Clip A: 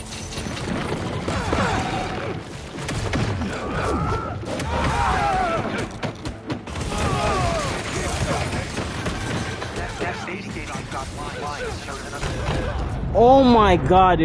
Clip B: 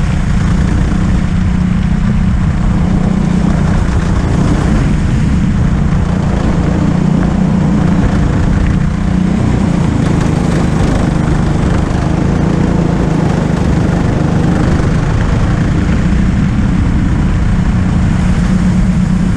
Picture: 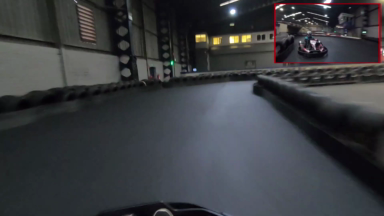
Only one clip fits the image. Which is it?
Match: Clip B